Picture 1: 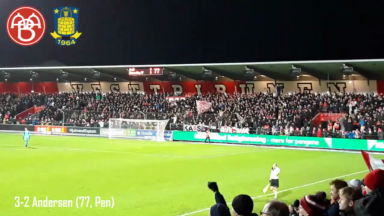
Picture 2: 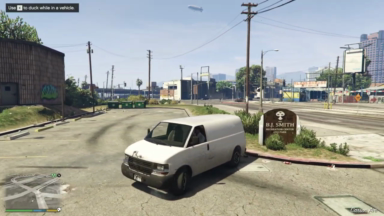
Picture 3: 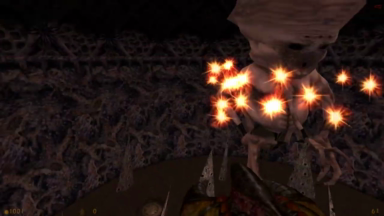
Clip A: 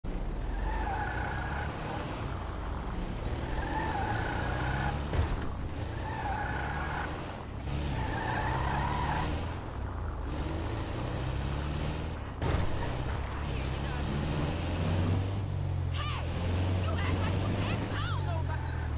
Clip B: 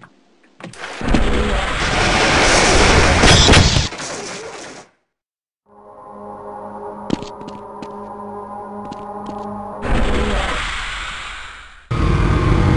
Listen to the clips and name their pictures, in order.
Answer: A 2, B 3